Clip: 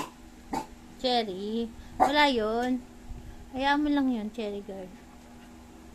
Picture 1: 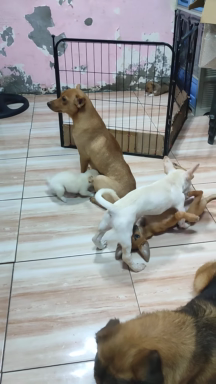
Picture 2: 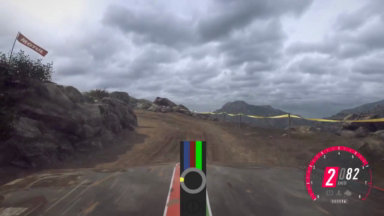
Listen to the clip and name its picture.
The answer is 1